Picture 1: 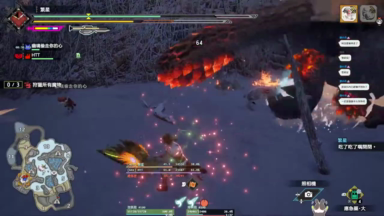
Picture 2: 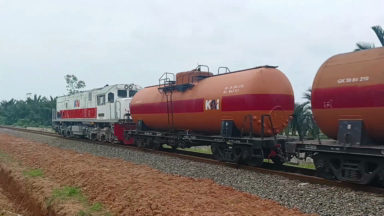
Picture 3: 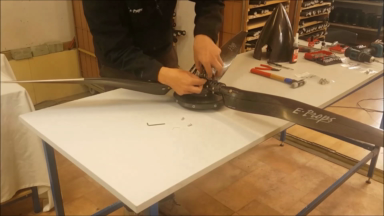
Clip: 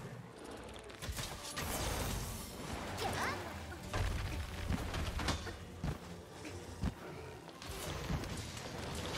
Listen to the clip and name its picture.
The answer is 1